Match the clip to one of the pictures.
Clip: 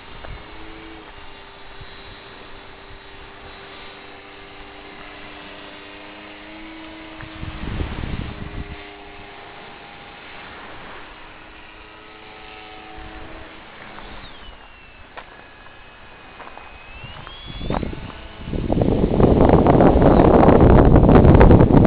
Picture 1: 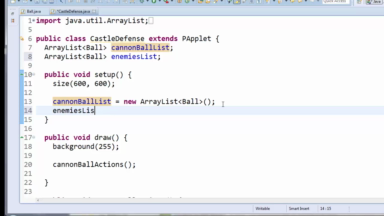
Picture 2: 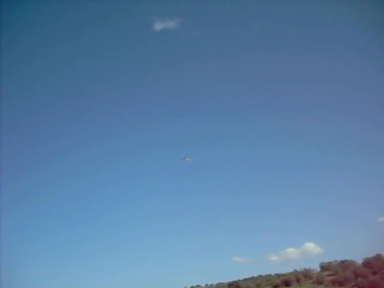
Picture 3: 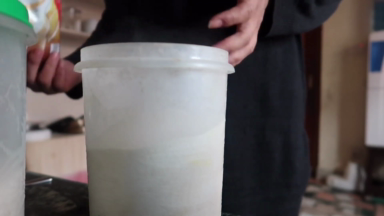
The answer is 2